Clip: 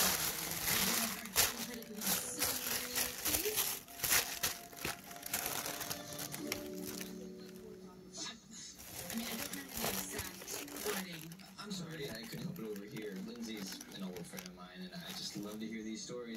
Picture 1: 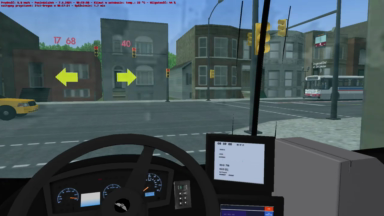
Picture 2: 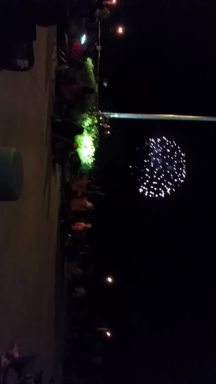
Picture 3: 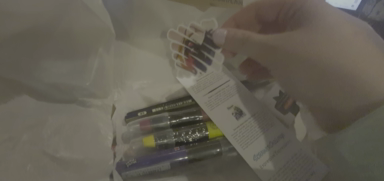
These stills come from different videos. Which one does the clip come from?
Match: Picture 3